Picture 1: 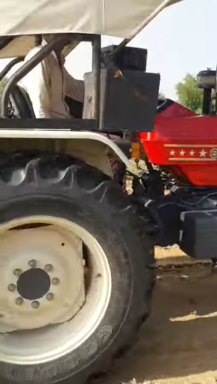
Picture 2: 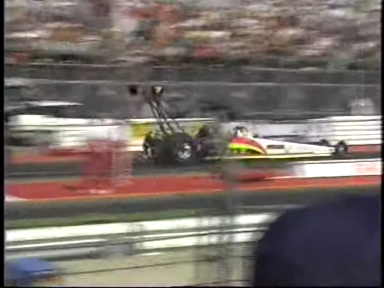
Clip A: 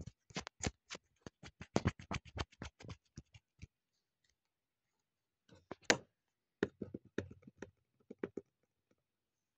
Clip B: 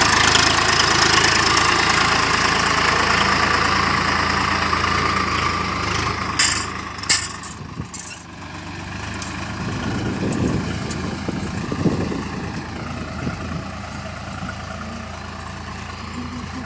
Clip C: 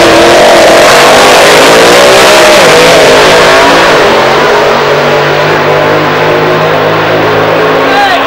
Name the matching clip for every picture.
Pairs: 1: B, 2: C